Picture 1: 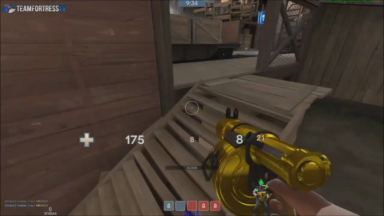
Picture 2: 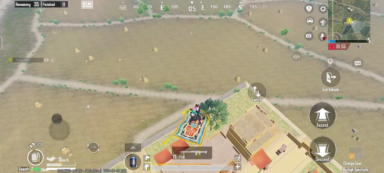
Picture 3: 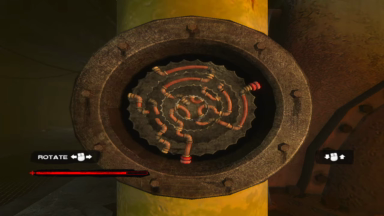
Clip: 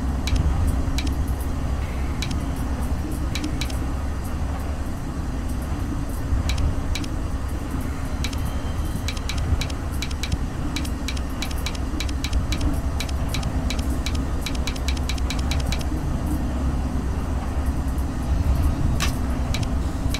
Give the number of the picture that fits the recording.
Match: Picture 3